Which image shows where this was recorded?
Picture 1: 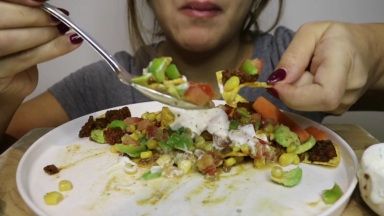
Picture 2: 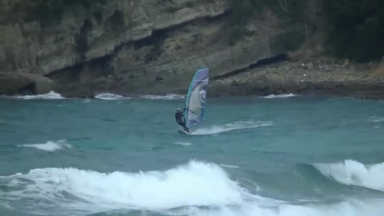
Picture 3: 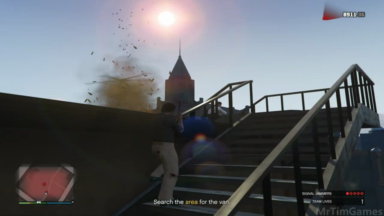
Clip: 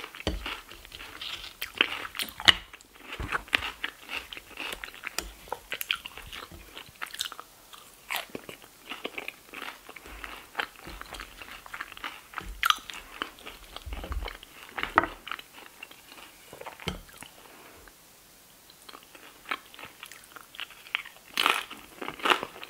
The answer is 1